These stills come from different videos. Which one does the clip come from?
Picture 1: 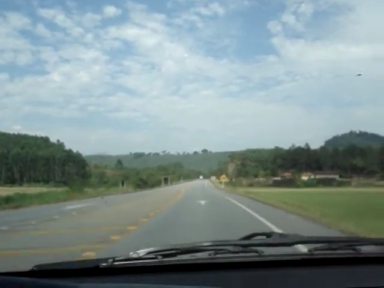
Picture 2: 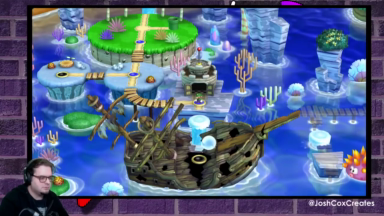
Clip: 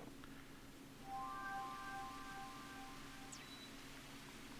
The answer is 2